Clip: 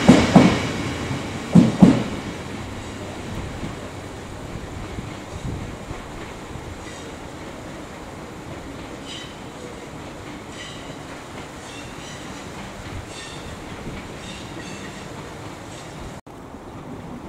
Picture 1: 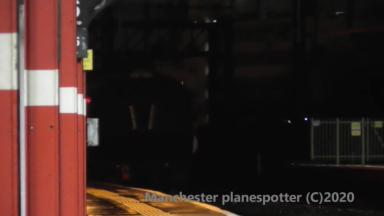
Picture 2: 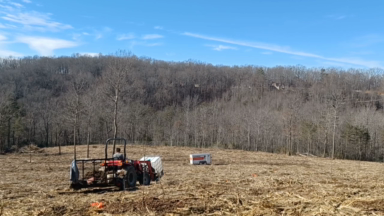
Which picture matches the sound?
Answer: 1